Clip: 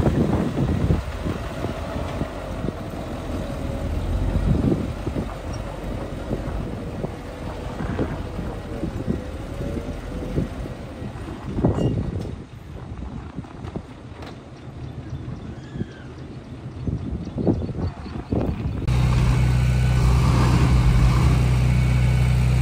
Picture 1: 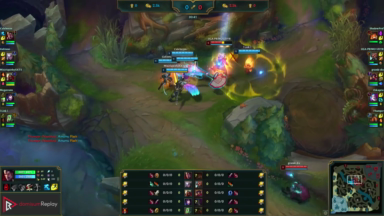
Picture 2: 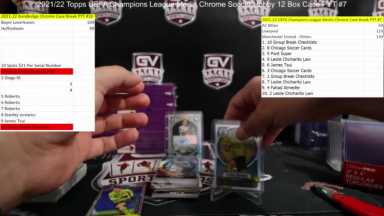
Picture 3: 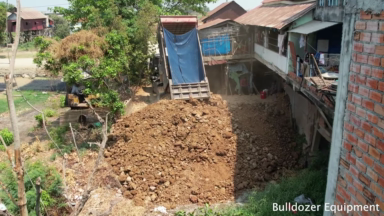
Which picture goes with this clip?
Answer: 3